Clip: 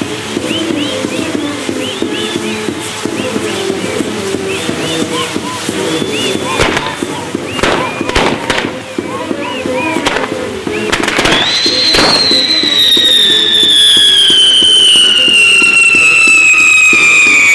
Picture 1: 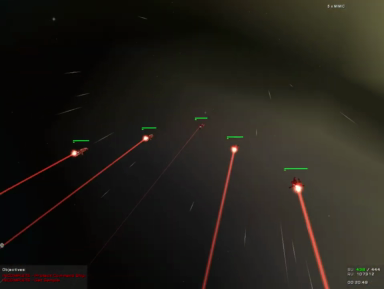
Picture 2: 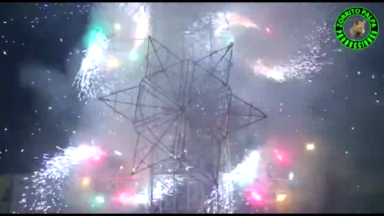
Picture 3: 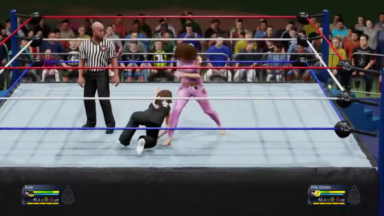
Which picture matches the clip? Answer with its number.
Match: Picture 2